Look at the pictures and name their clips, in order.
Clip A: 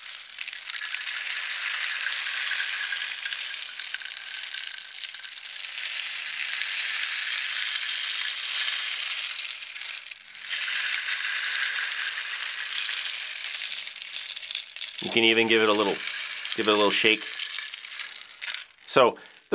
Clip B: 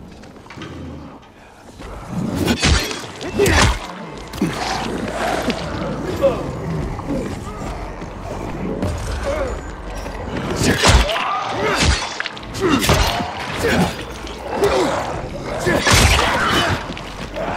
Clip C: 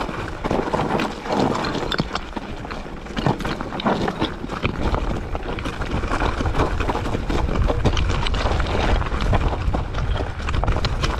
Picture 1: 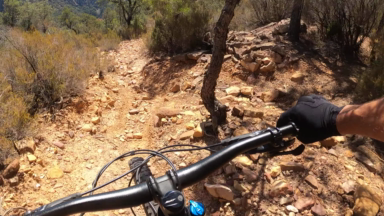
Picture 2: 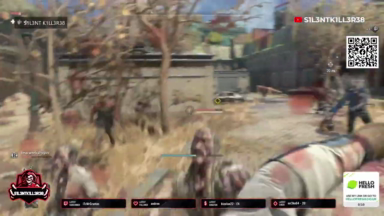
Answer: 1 C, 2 B